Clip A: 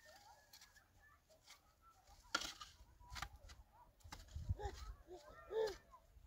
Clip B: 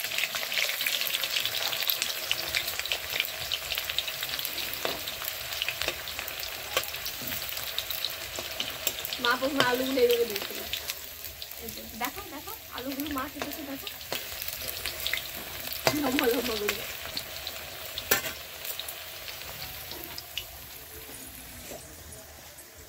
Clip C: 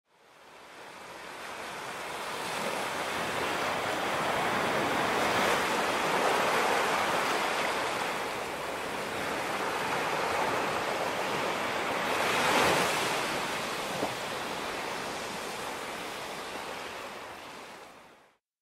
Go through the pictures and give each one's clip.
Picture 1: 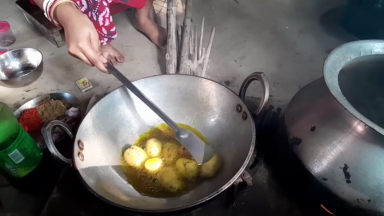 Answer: B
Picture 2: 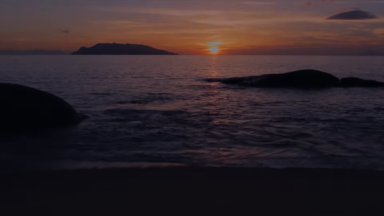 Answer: C